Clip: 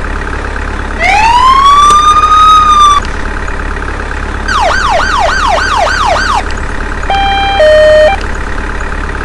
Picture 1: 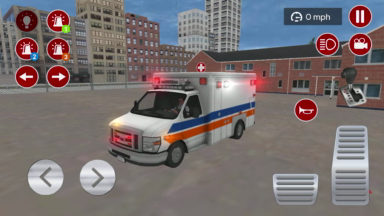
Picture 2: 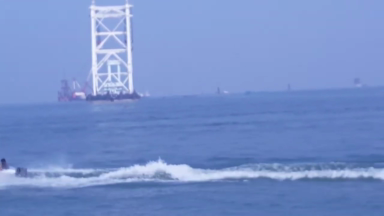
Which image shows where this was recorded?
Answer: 1